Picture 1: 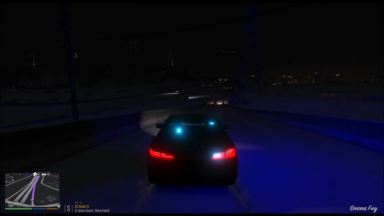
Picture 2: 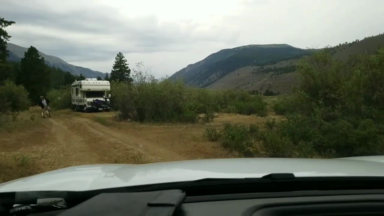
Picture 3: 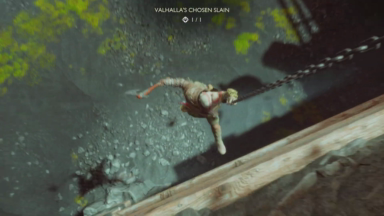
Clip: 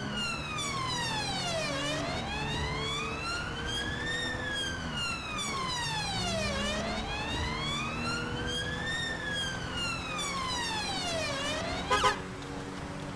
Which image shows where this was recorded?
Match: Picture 1